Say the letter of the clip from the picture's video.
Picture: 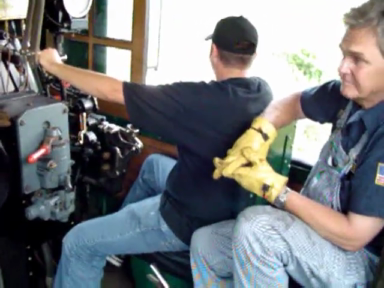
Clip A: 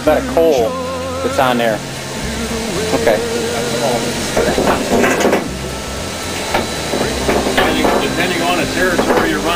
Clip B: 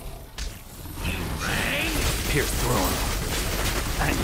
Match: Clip A